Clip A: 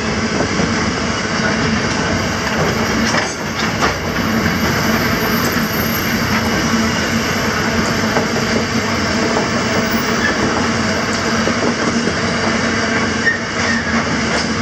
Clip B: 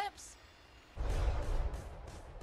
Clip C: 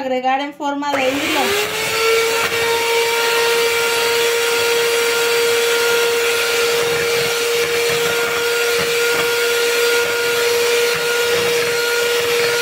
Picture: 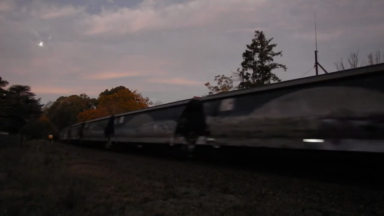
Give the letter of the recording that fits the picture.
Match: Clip A